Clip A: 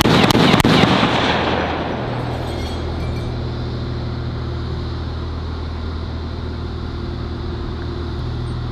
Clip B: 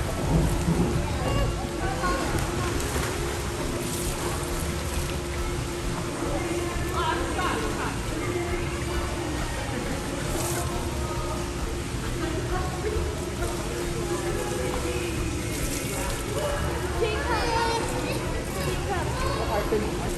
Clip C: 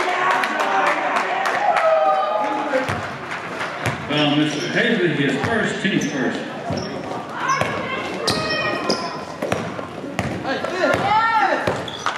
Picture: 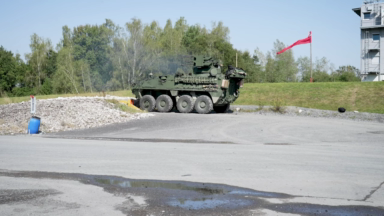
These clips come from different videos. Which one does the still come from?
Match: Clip A